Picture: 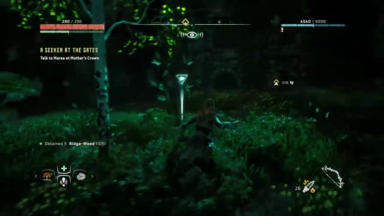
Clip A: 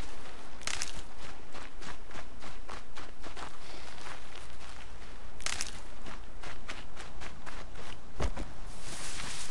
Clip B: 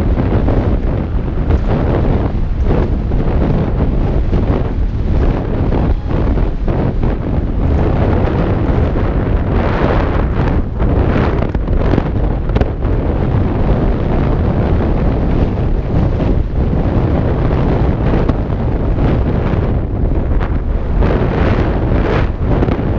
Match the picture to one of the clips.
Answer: A